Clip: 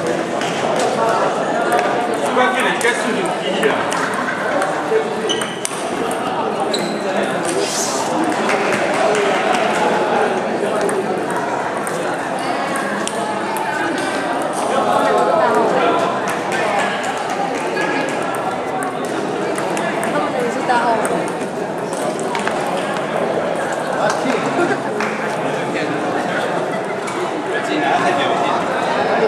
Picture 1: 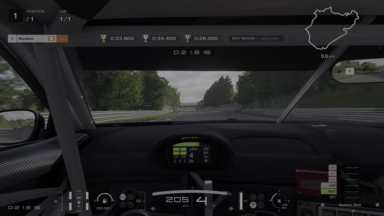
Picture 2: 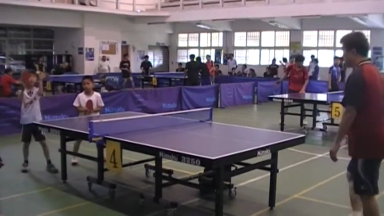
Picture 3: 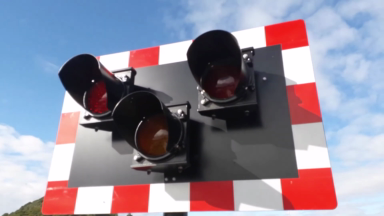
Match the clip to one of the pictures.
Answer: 2